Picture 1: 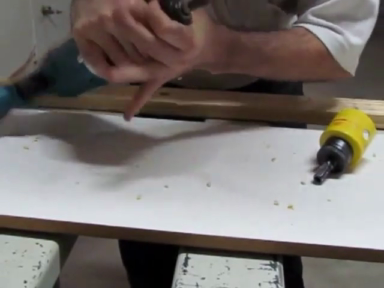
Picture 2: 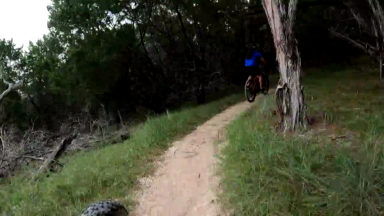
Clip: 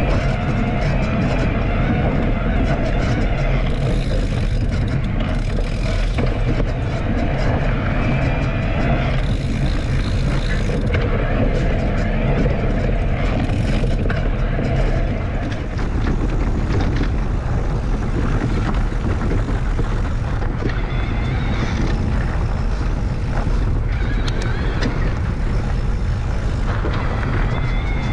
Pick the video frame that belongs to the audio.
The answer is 2